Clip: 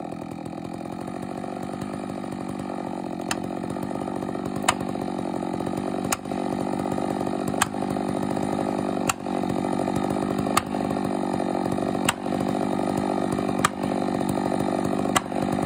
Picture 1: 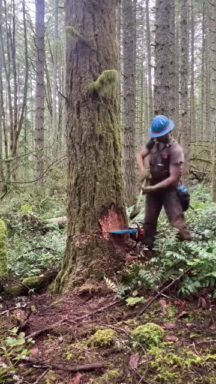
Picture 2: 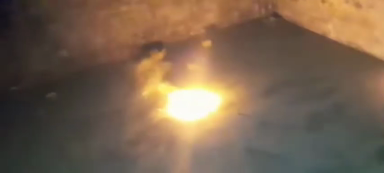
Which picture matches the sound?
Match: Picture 1